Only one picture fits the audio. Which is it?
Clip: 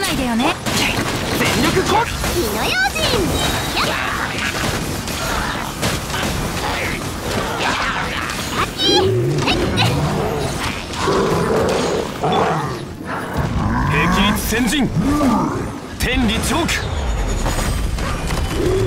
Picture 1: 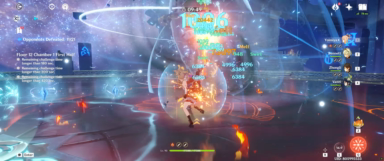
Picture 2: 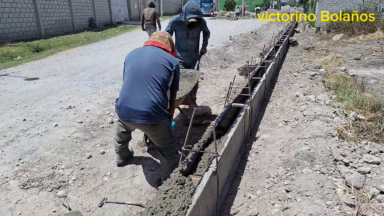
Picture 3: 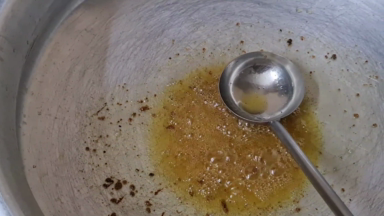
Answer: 1